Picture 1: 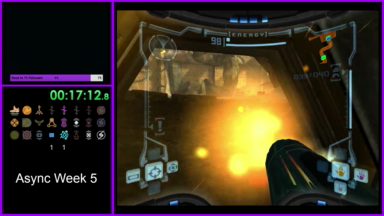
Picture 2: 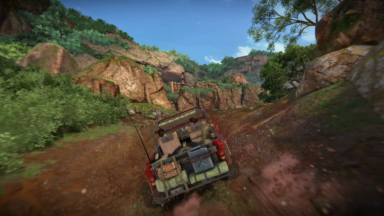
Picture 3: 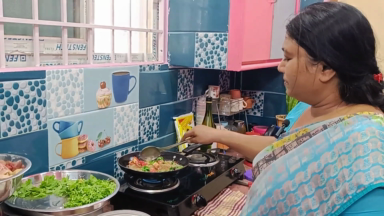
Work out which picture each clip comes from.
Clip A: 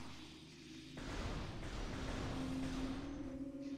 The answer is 1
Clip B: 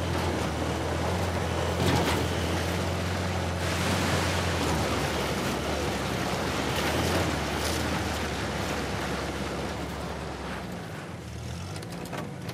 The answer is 2